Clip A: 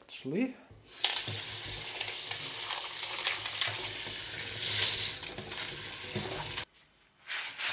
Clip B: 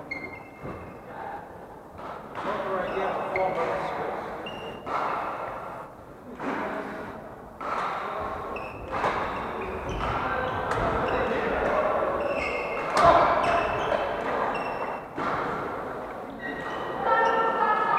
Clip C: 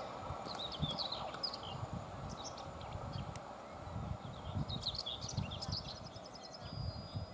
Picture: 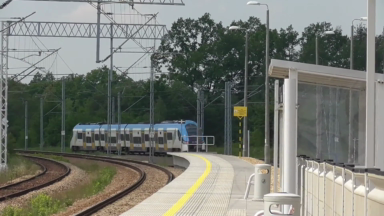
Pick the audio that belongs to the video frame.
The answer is C